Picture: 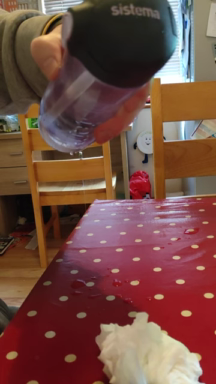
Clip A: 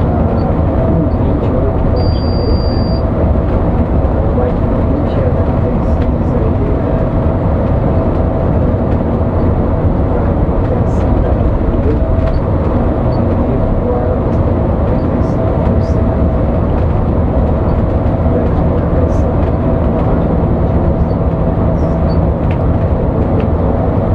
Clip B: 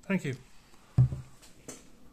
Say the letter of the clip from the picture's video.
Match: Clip B